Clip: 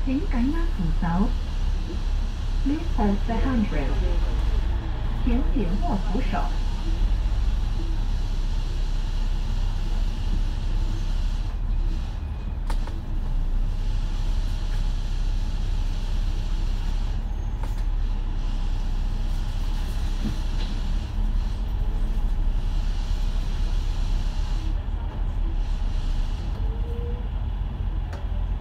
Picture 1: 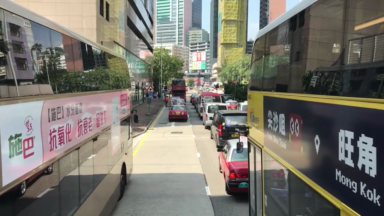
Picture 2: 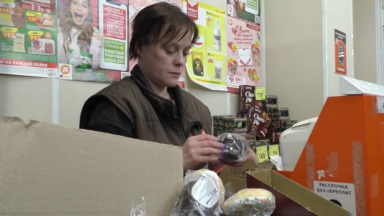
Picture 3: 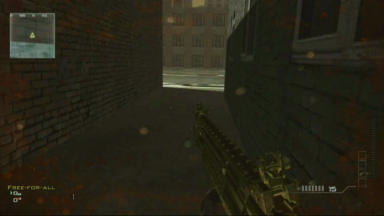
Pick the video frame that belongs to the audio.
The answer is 1